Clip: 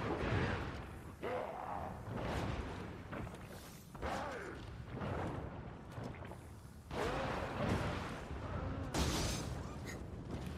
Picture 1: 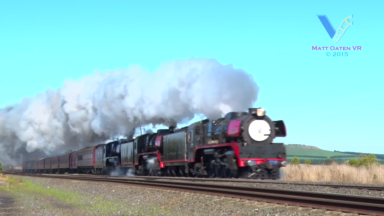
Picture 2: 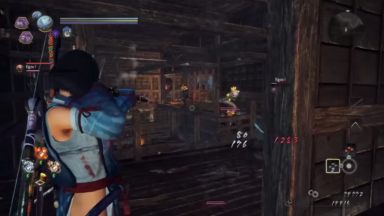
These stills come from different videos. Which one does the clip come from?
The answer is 2